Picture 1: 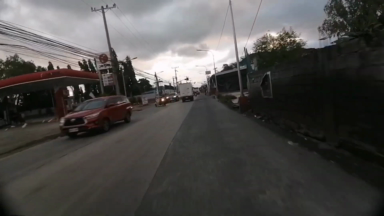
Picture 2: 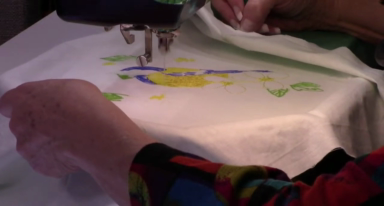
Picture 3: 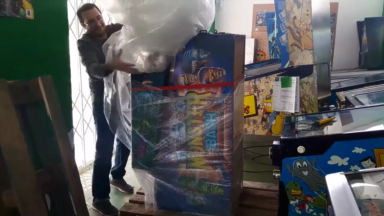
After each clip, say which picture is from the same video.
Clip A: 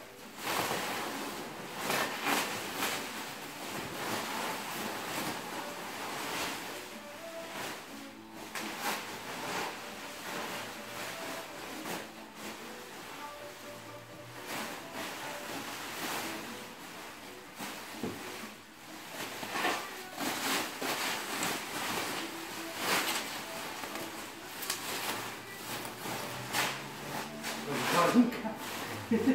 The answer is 3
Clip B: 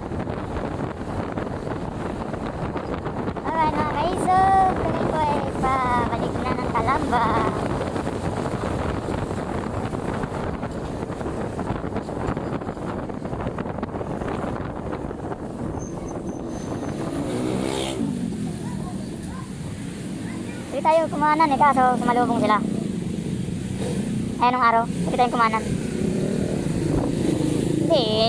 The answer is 1